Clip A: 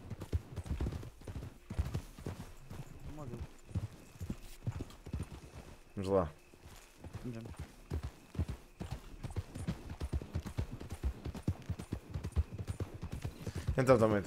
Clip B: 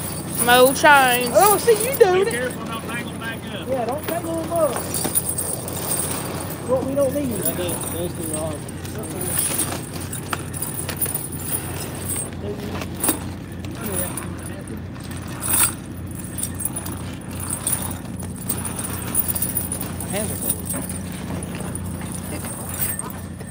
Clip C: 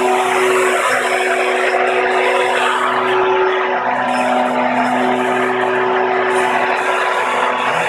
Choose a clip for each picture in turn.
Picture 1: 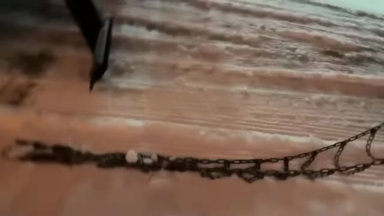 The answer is B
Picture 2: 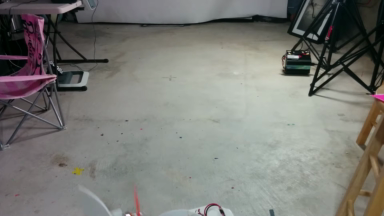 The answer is C